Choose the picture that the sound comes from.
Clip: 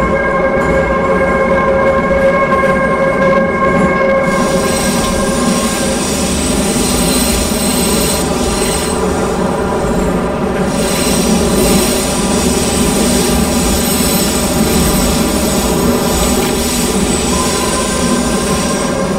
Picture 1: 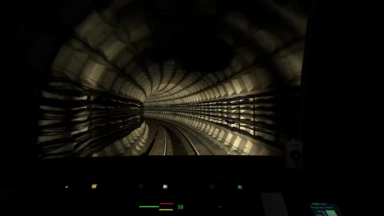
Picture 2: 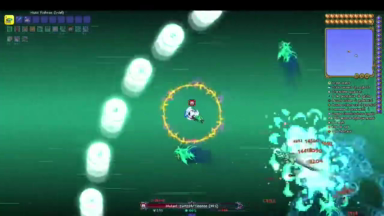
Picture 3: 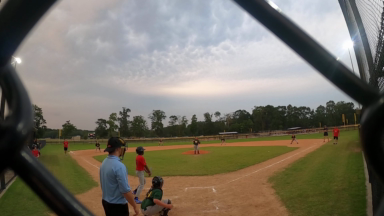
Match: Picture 1